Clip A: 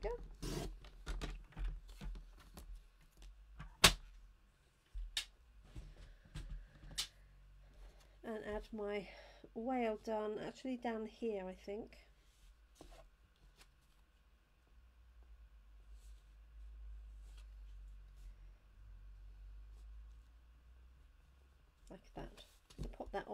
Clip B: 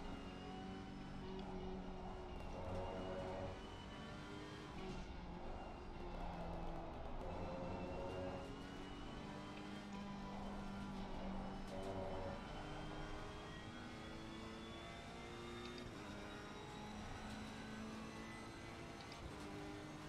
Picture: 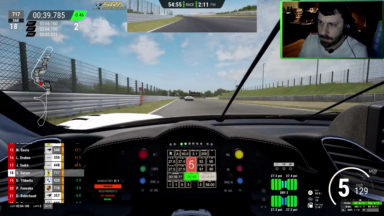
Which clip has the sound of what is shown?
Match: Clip B